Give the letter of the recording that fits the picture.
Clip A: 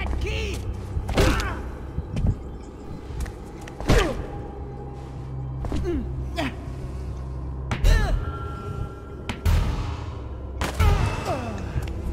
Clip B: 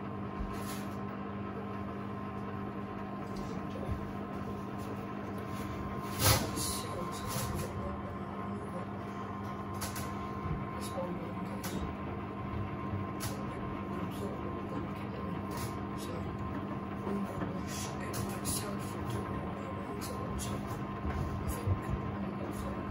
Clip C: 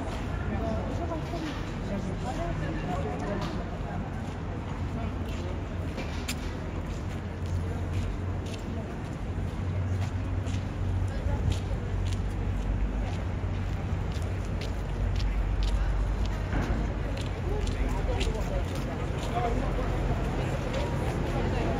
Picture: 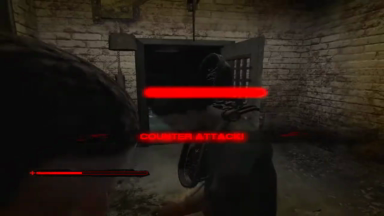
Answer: A